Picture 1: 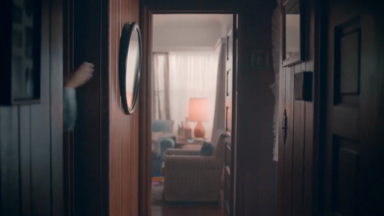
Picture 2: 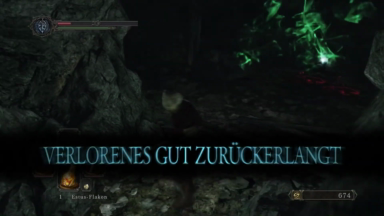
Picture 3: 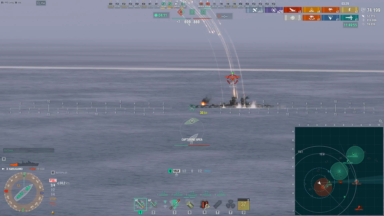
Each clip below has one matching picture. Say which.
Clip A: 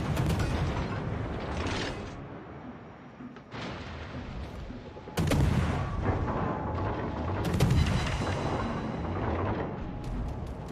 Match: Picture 3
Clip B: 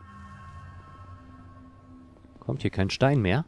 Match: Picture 2